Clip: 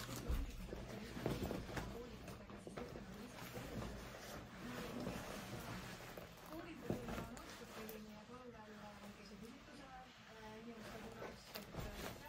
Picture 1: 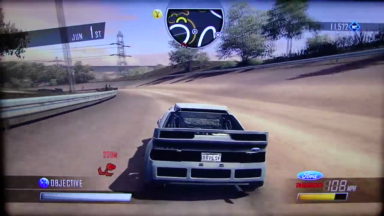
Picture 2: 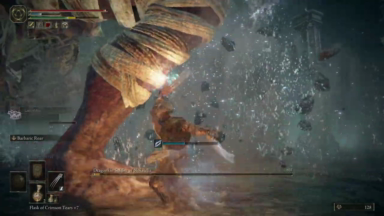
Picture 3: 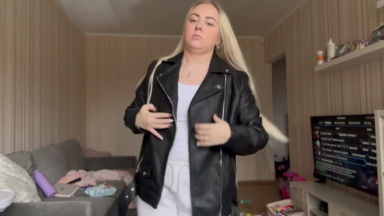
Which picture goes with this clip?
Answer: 3